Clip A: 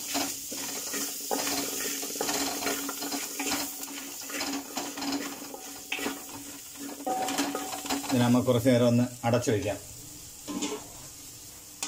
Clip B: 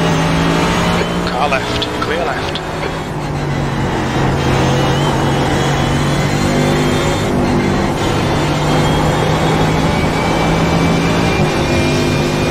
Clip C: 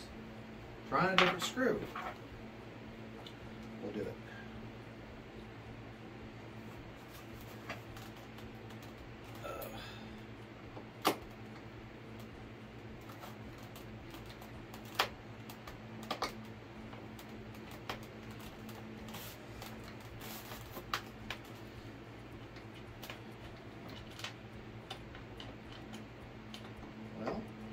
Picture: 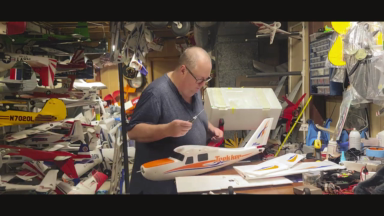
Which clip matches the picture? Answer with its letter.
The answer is C